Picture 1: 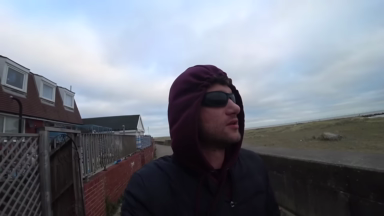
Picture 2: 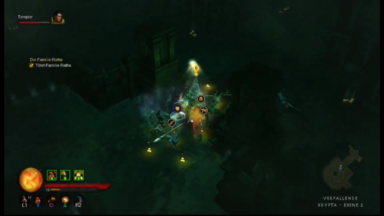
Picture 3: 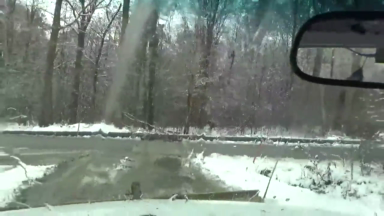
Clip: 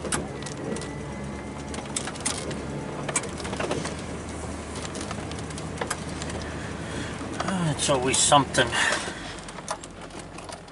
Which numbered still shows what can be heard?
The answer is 3